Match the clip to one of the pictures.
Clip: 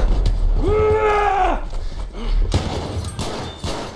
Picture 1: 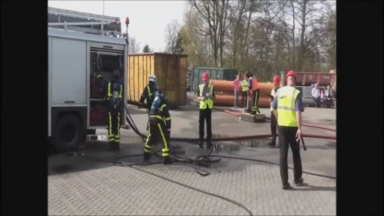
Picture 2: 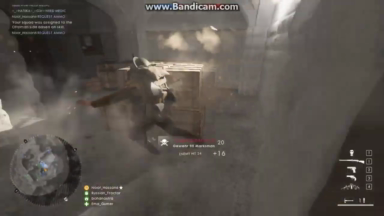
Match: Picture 2